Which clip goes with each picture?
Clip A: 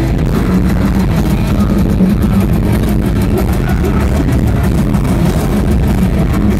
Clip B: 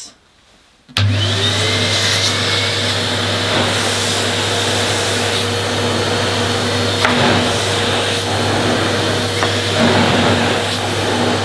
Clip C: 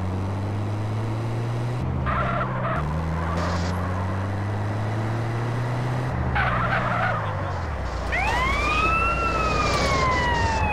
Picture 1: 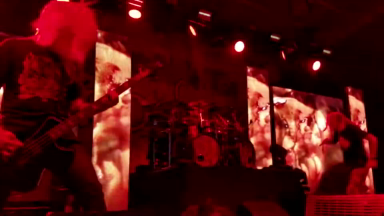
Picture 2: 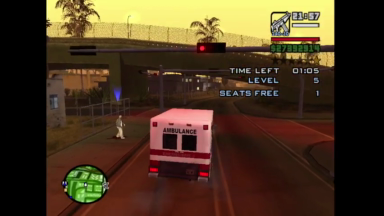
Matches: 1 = A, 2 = C